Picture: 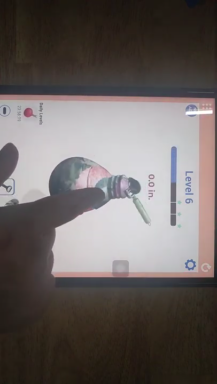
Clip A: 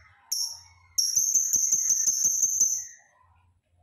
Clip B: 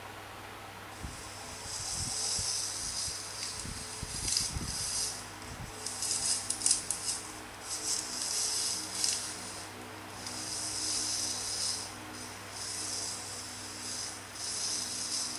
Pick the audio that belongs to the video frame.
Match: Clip B